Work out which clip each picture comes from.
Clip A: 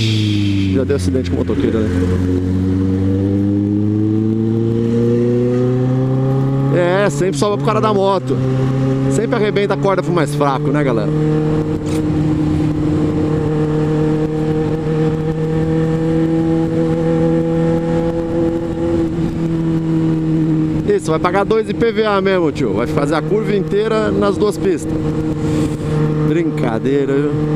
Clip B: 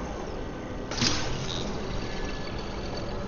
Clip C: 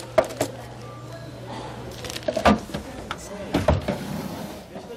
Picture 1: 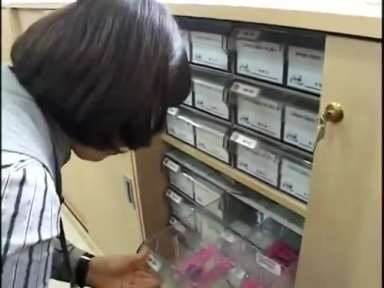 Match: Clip C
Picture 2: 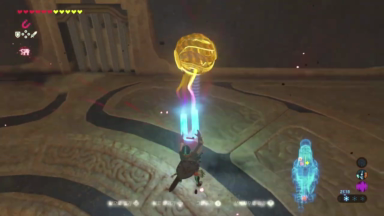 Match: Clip B